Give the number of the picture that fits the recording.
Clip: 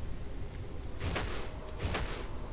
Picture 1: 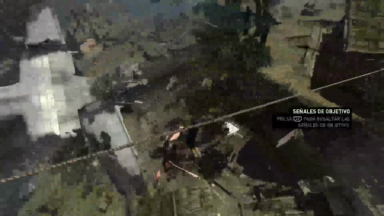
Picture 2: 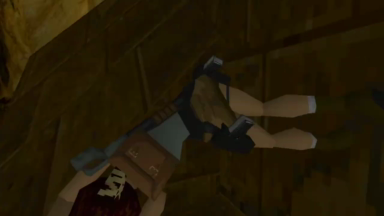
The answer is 2